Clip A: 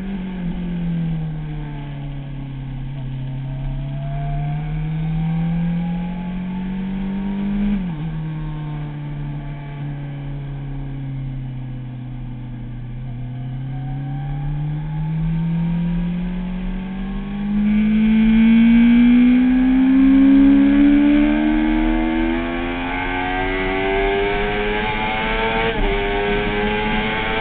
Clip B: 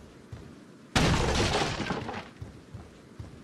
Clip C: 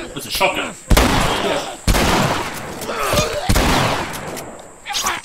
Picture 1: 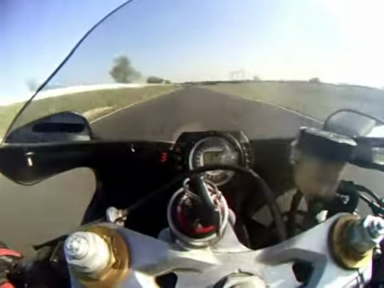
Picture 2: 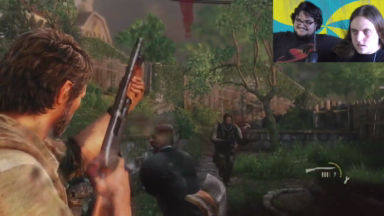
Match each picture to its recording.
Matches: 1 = A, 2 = C